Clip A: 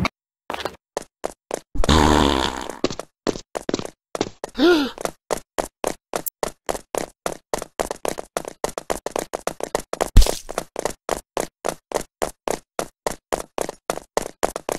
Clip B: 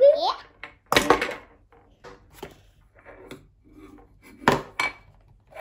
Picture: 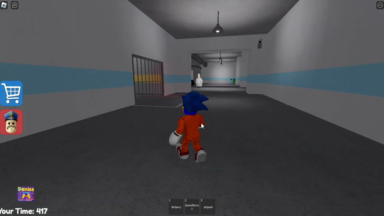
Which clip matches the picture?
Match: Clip A